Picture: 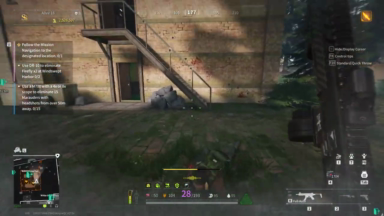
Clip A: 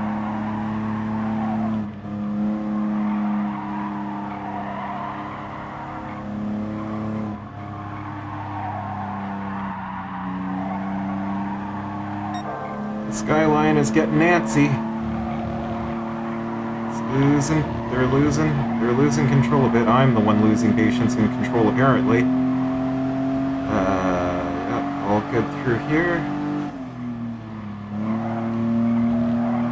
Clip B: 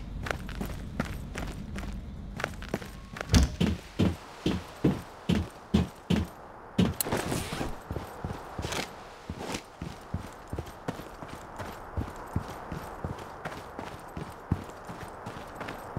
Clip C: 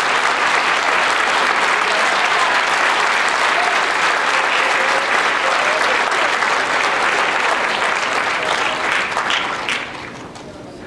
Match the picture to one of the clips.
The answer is B